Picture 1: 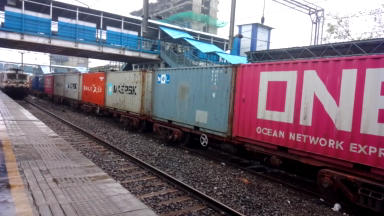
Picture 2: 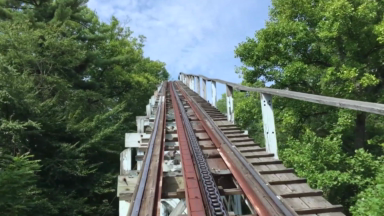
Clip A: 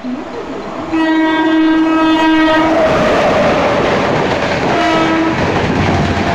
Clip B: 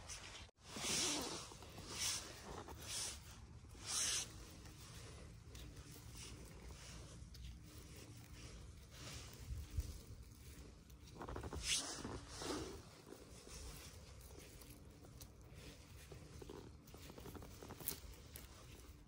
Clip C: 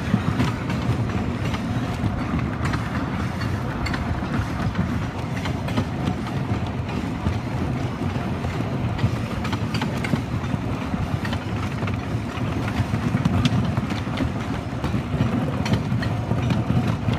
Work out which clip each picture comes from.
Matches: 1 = A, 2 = C